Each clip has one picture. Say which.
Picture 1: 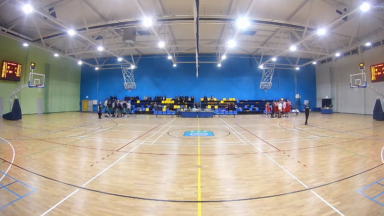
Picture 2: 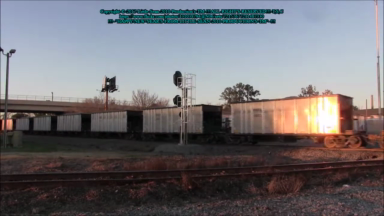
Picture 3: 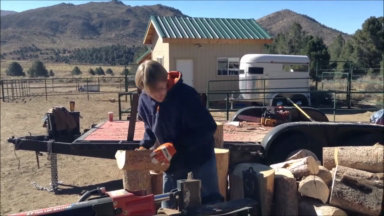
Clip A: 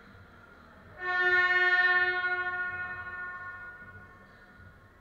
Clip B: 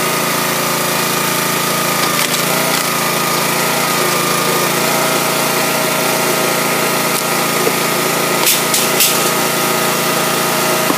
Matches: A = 1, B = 3